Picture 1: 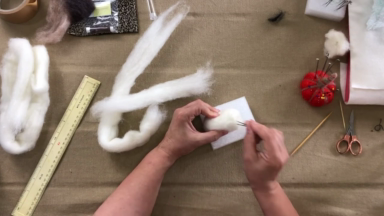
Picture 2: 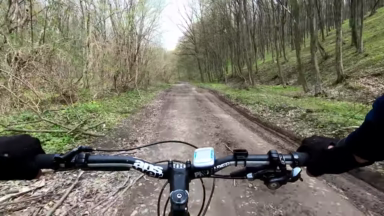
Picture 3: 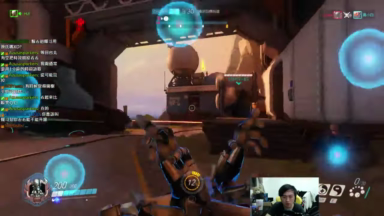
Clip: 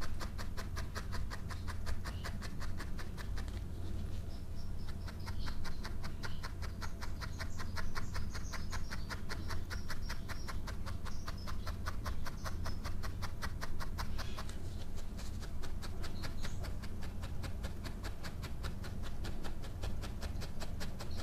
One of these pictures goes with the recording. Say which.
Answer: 1